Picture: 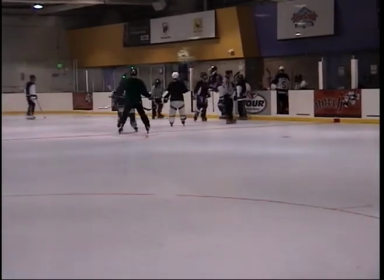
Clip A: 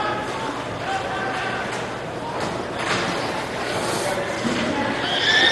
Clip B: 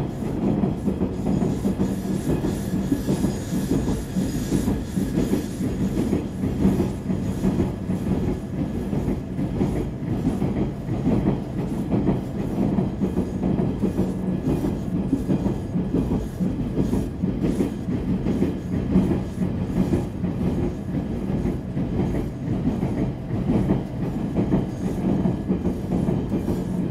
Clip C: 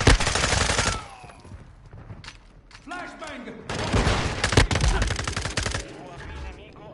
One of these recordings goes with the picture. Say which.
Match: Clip A